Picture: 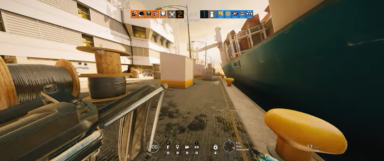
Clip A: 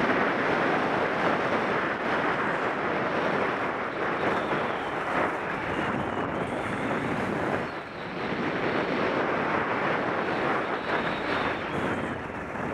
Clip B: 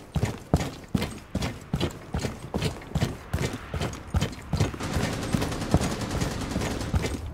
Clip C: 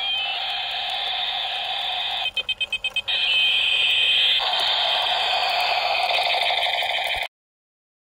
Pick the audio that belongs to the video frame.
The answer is B